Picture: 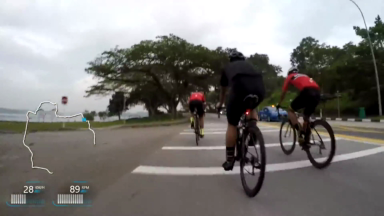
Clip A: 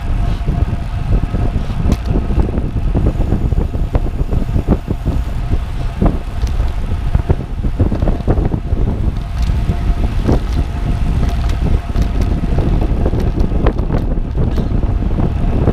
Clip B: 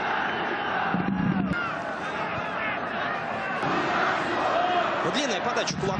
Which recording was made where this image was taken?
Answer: A